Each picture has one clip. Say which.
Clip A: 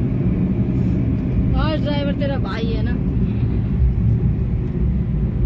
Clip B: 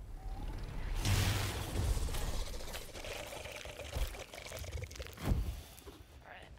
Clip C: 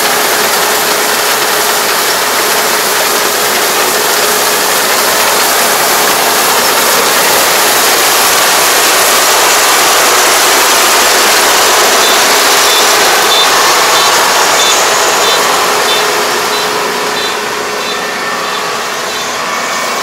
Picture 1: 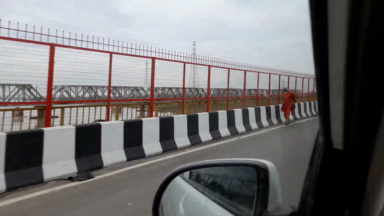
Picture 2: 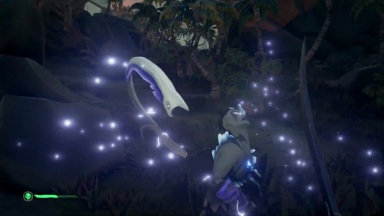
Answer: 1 A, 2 B